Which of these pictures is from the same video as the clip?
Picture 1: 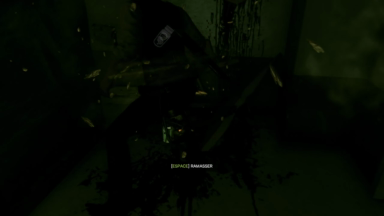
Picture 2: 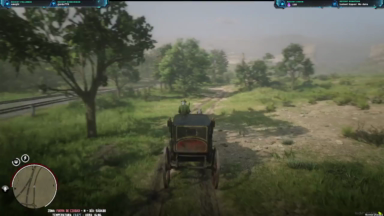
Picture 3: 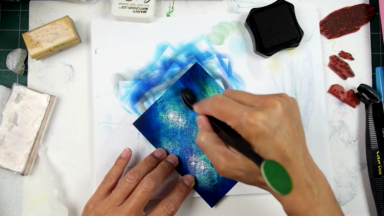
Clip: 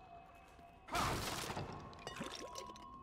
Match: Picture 1